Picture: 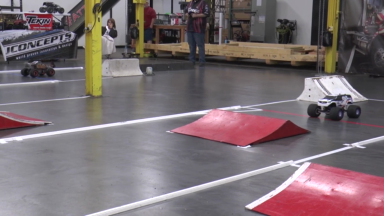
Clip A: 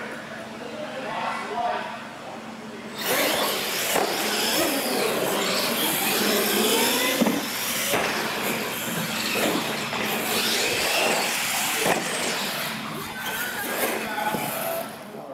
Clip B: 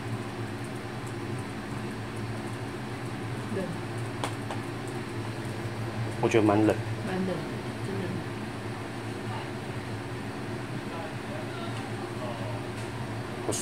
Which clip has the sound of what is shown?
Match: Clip A